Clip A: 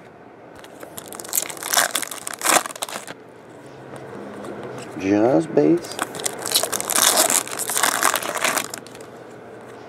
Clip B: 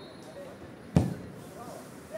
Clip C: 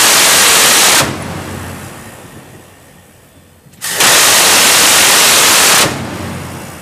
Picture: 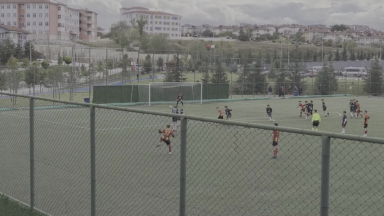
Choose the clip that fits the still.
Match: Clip B